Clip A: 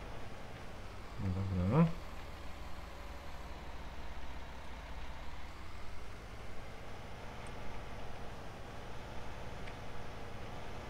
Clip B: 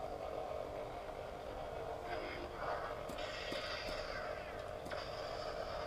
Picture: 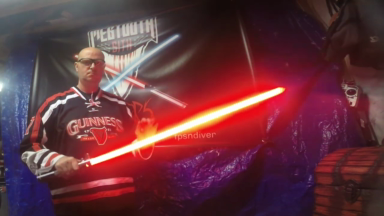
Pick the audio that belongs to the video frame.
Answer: B